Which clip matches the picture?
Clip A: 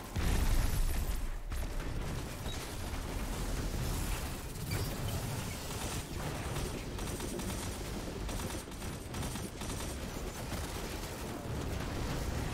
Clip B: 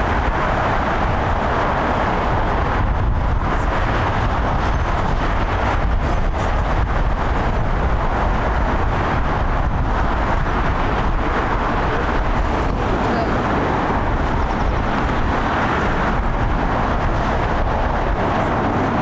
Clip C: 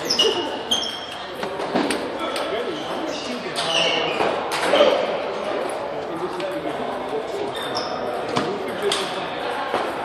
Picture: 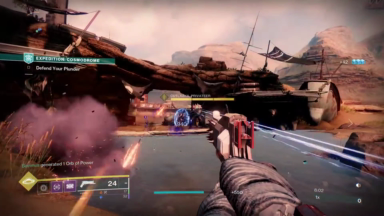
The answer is A